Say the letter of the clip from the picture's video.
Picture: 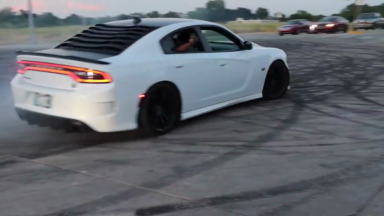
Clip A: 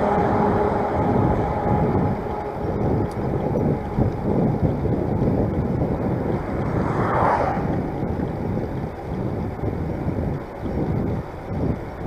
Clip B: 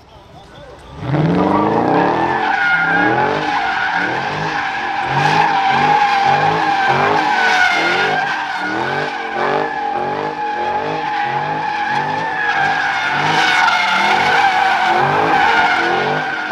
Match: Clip B